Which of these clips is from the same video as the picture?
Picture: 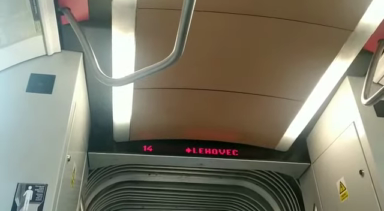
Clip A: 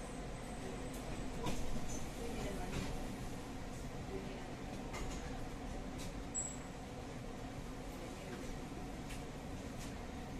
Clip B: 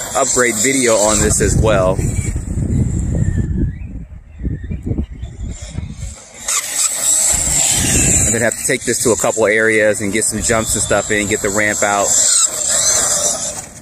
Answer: A